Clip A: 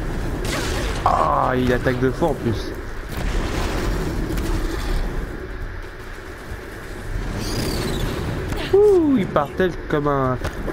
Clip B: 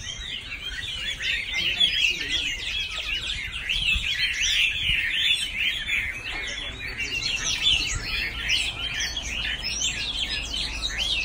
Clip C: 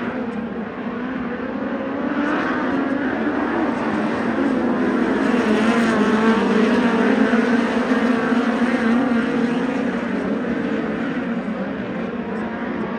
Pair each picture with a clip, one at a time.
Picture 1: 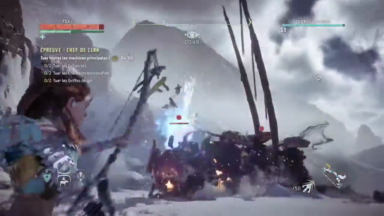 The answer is A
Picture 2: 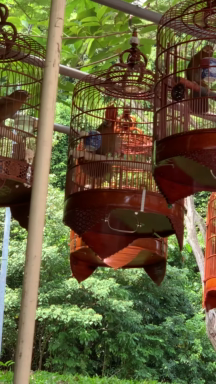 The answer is B